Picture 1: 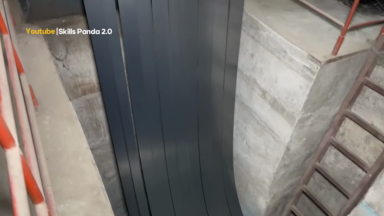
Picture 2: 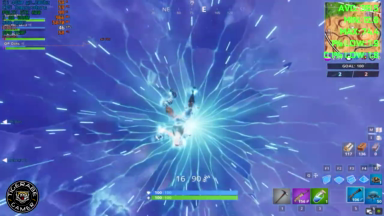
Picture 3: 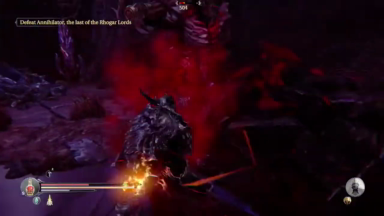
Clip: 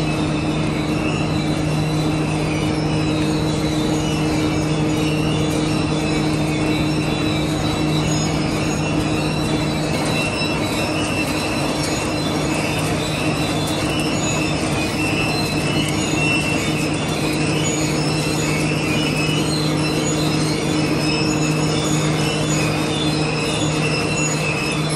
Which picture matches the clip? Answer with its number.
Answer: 1